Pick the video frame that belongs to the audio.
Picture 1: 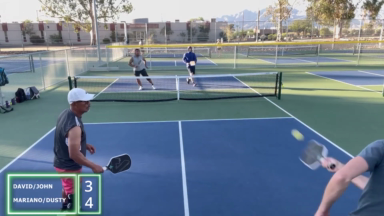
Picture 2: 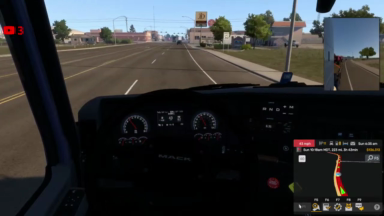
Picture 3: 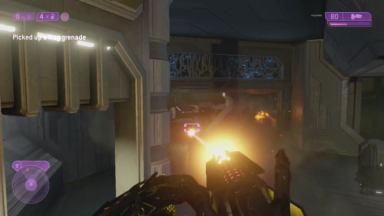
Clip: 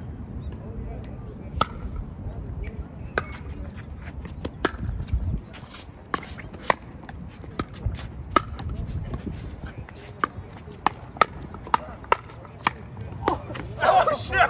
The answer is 1